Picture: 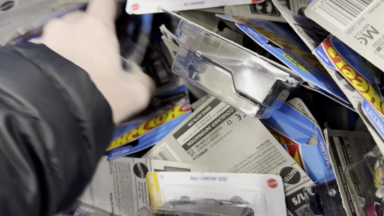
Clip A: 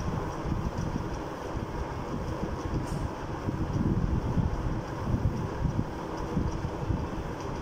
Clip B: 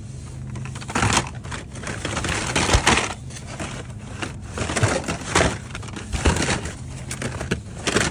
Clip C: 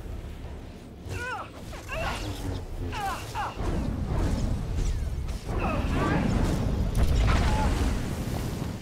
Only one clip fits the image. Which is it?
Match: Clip B